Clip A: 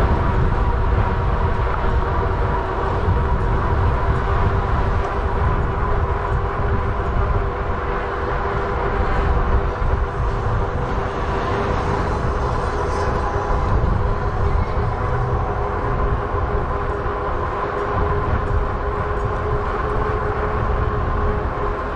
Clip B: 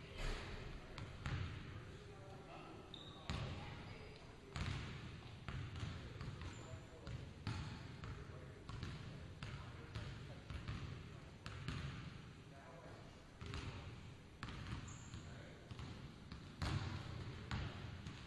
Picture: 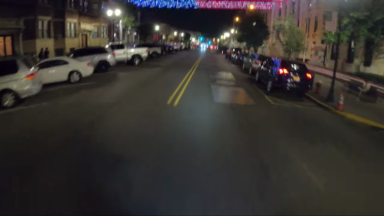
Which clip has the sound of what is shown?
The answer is A